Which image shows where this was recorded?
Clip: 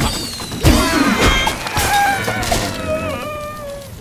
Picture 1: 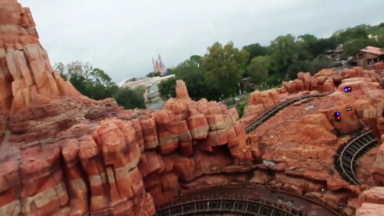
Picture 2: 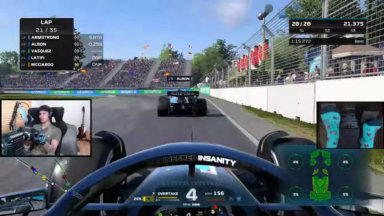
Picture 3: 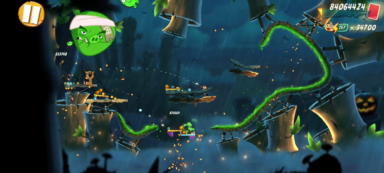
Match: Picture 3